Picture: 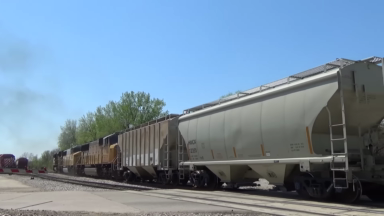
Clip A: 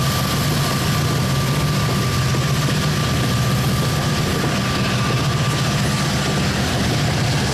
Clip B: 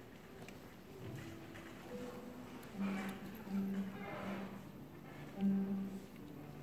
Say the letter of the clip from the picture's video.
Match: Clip A